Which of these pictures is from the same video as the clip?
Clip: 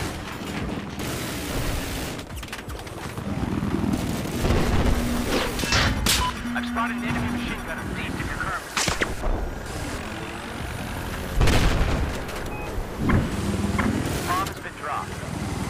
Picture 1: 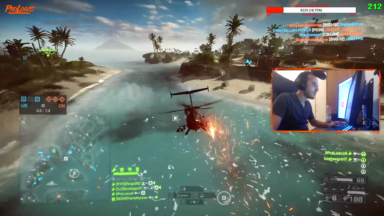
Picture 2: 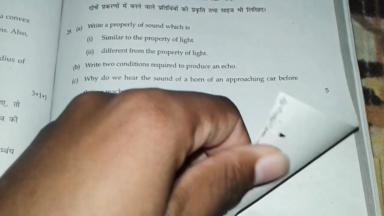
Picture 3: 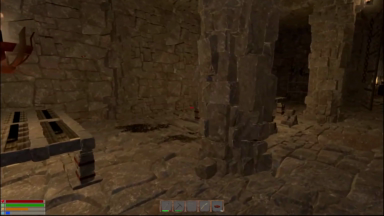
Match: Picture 1